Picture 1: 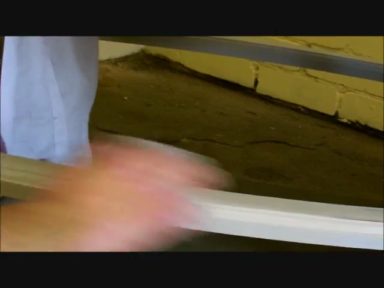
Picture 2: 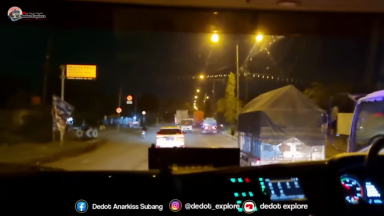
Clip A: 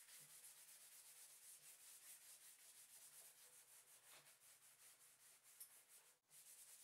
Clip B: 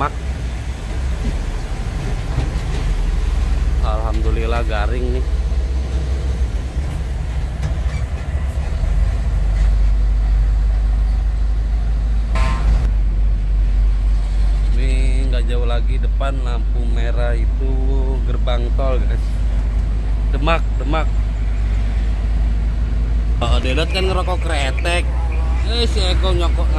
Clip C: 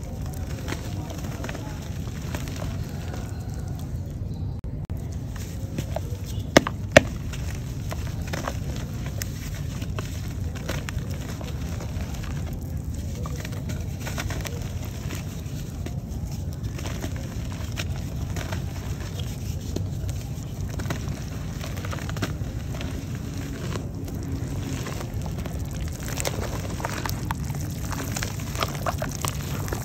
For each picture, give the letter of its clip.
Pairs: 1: A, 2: B